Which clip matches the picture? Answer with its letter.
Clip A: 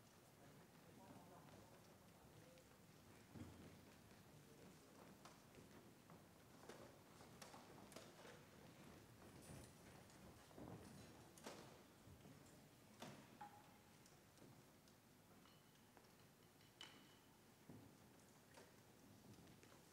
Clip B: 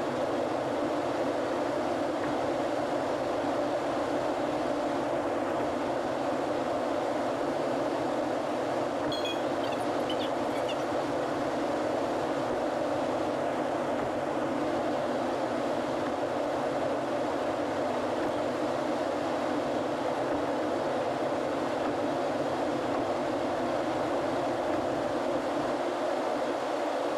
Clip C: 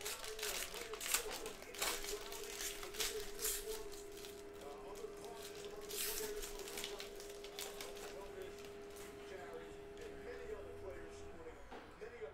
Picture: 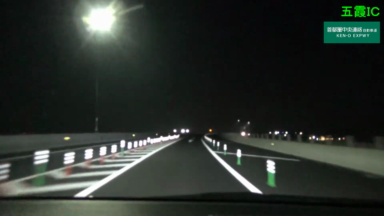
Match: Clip B